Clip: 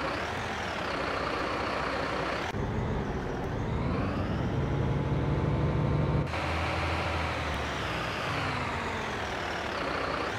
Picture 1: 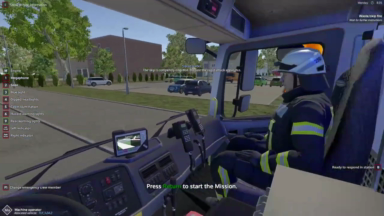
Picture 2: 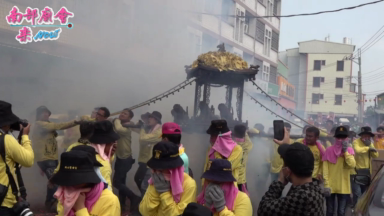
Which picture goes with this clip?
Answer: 1